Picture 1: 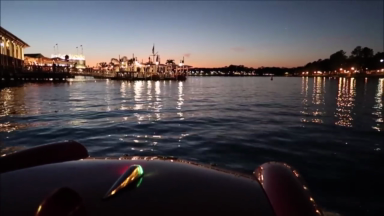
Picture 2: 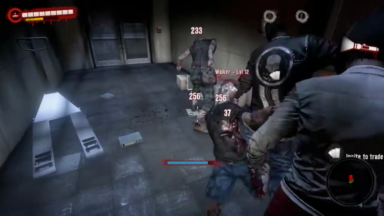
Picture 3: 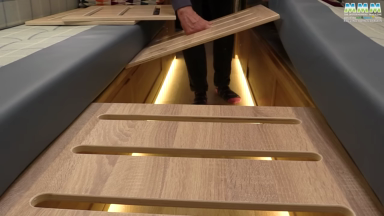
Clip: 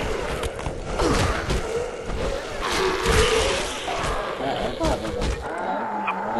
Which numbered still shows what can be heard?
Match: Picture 2